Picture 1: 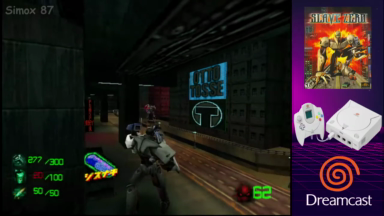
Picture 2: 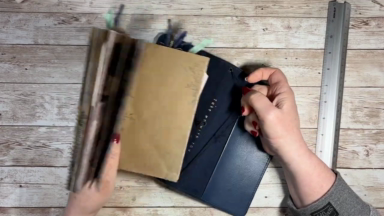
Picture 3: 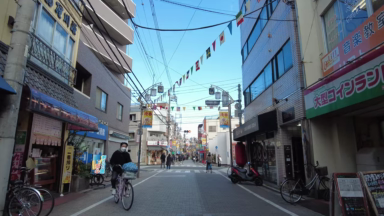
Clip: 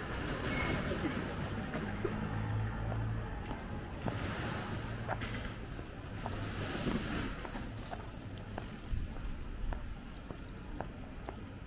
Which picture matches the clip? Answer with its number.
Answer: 3